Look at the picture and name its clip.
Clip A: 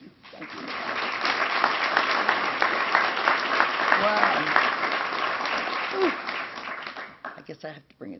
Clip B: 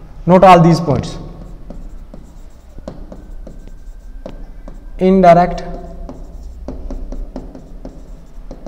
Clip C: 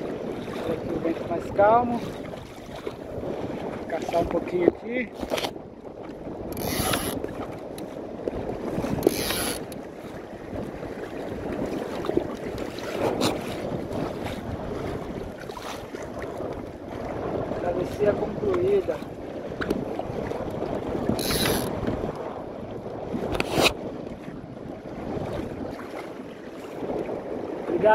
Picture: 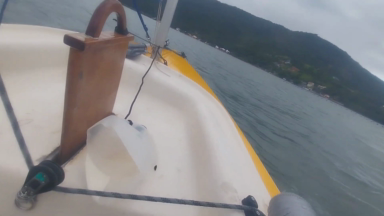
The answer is C